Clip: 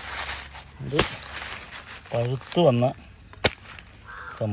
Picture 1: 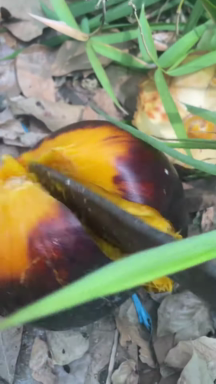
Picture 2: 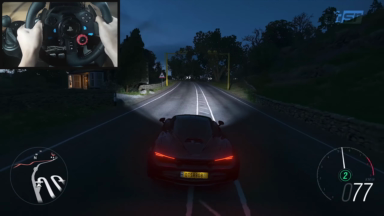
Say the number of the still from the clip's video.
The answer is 1